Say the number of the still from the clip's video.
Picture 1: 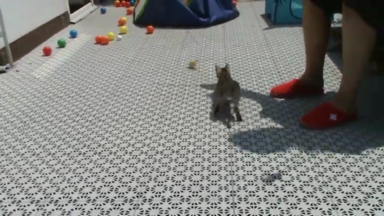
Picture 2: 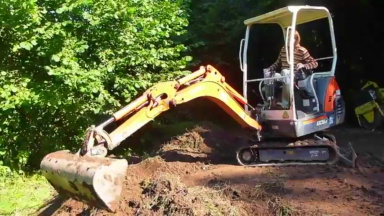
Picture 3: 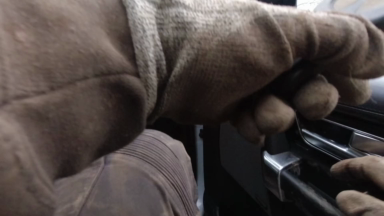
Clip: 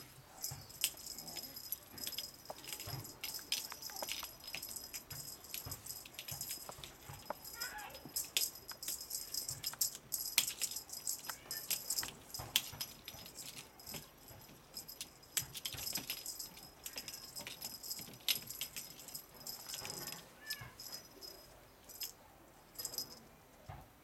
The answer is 1